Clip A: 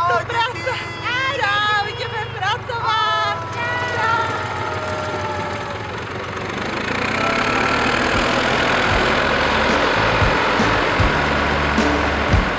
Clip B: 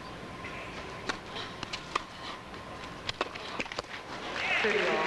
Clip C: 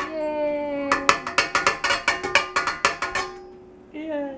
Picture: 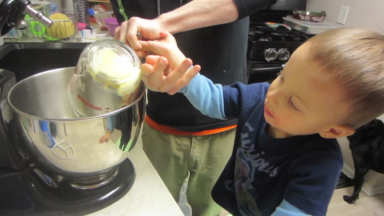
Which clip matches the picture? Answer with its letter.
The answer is C